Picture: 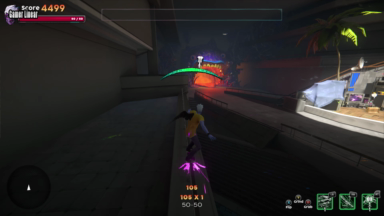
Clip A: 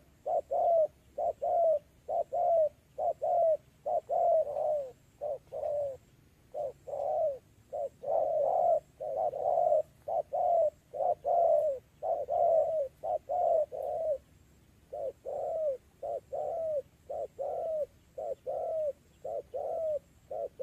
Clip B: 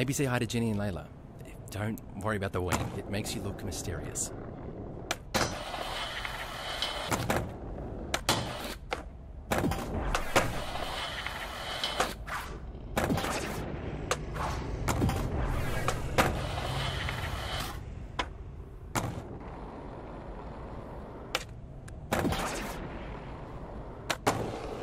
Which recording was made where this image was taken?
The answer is B